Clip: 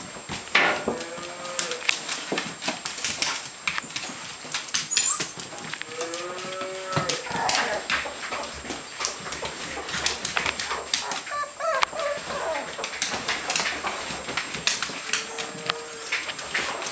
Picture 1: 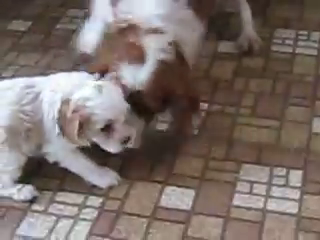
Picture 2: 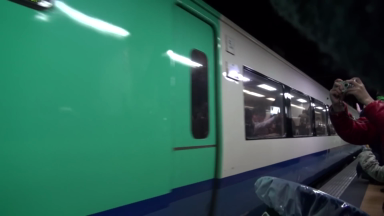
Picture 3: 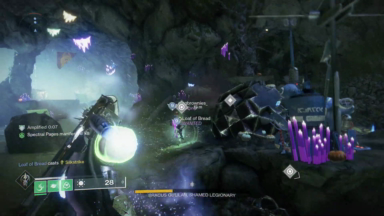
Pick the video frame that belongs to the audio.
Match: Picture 1